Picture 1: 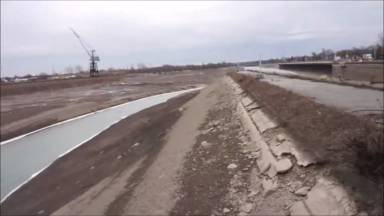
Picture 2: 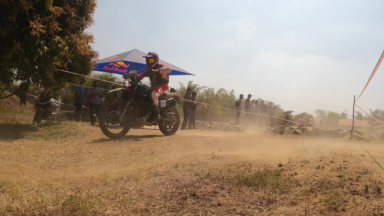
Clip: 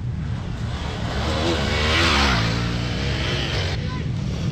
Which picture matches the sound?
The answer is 2